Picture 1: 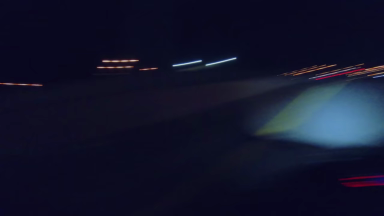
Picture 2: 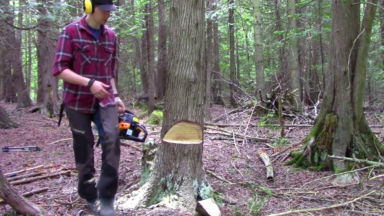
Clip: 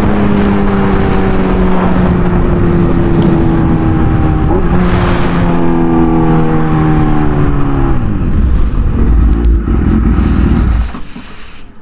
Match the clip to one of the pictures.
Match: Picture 1